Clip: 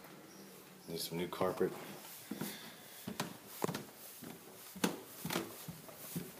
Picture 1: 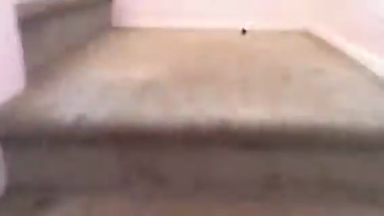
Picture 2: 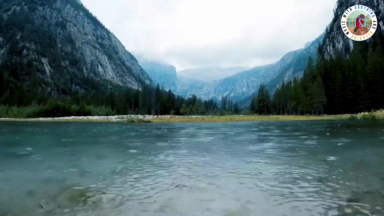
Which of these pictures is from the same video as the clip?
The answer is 1